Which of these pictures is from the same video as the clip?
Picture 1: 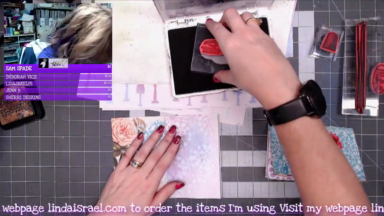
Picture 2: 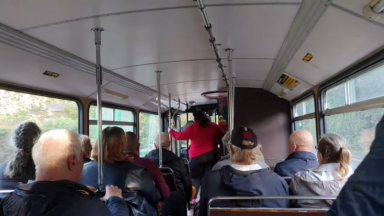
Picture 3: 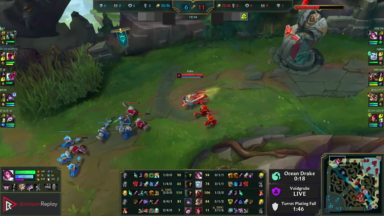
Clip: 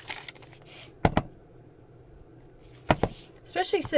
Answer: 1